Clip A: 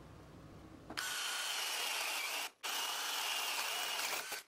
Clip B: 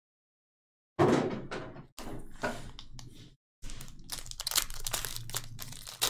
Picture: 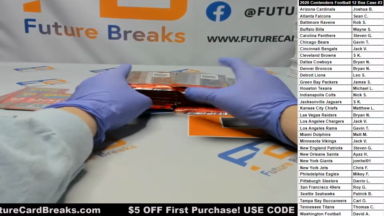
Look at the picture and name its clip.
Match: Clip B